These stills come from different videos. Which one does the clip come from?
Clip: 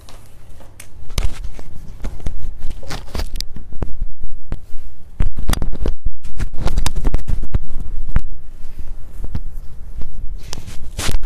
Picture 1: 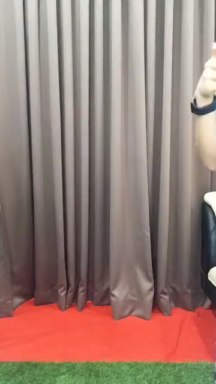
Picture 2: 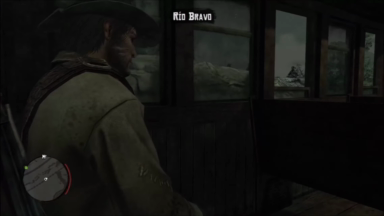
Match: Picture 1